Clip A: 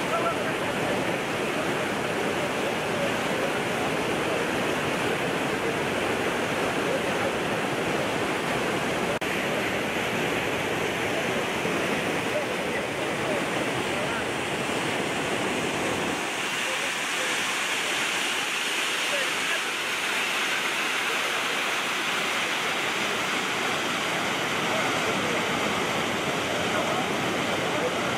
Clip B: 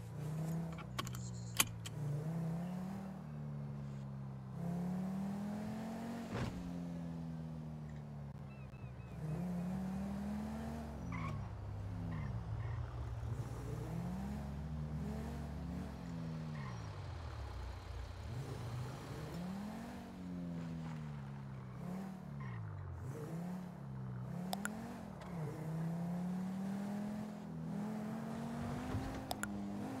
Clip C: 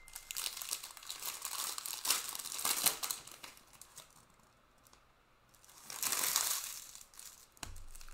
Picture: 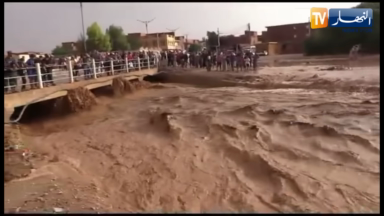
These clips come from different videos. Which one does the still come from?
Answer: A